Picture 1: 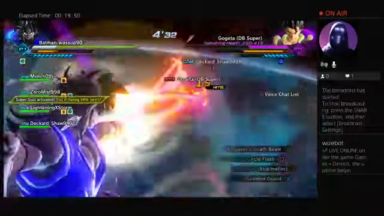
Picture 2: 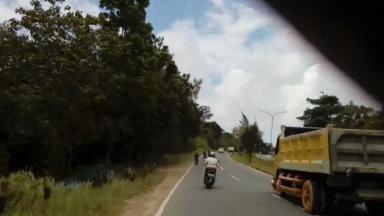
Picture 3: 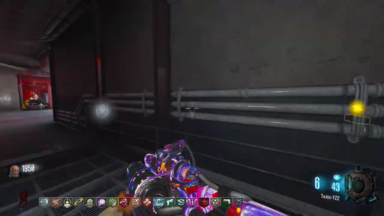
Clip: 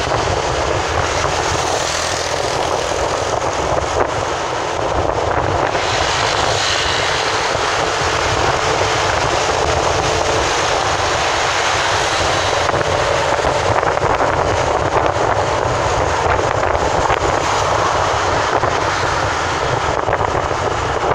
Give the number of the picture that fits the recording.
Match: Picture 2